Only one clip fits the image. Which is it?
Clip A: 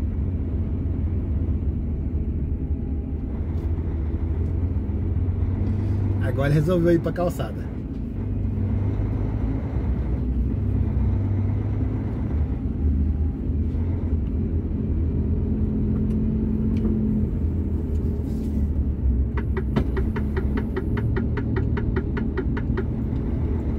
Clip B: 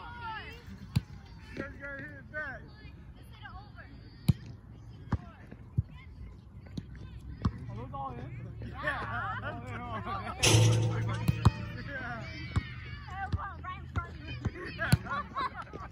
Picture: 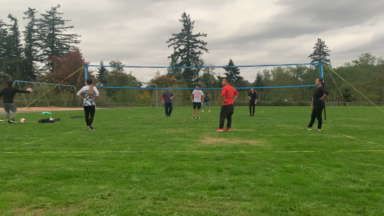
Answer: B